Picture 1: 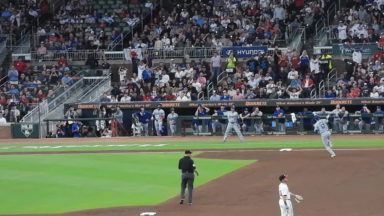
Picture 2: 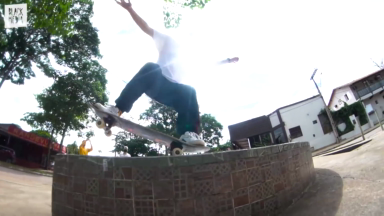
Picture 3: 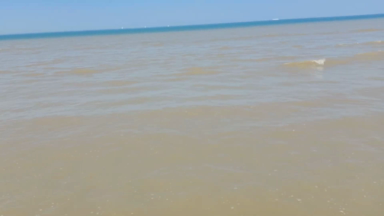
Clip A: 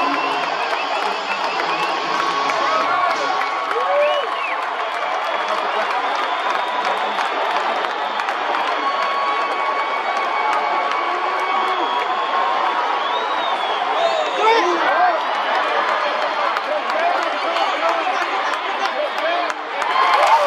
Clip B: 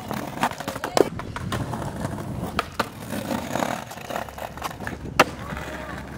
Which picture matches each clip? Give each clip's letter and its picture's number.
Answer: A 1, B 2